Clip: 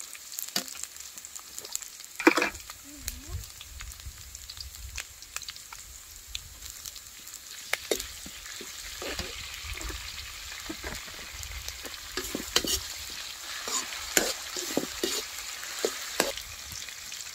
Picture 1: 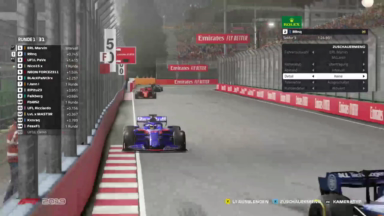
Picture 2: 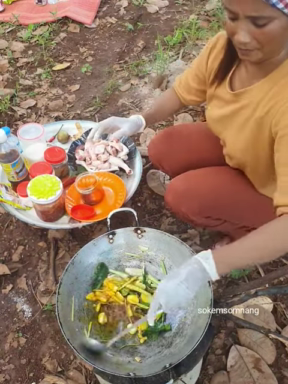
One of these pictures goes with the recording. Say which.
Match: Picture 2